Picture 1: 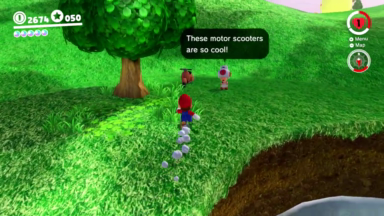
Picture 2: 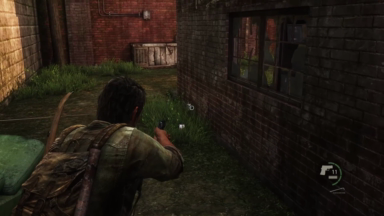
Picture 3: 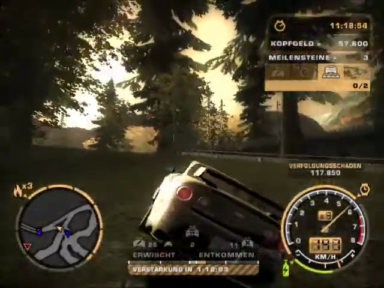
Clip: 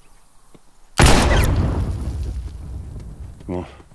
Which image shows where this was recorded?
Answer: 2